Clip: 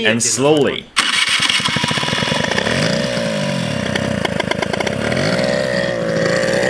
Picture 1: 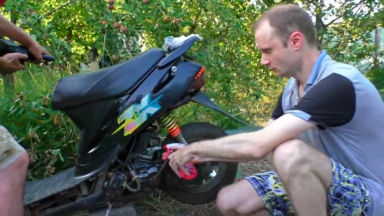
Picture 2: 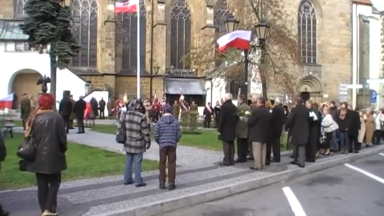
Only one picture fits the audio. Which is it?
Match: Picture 1